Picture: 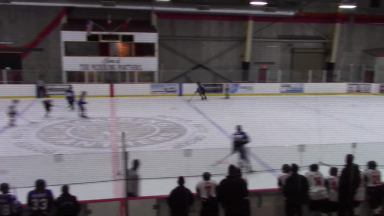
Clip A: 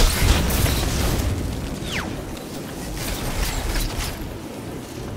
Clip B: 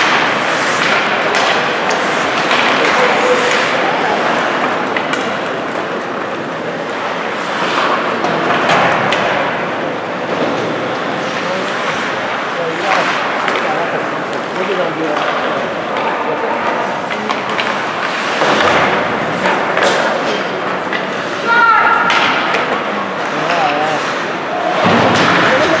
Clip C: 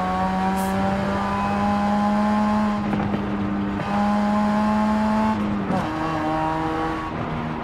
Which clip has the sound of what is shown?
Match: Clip B